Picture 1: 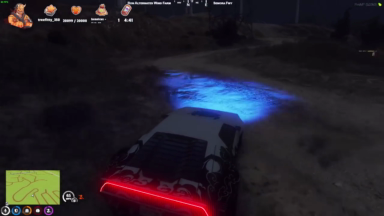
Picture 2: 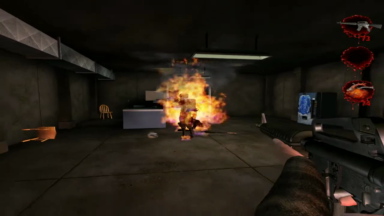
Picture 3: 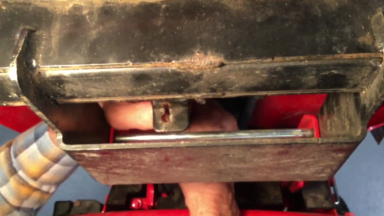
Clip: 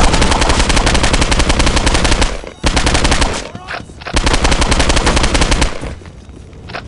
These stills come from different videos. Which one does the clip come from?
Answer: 2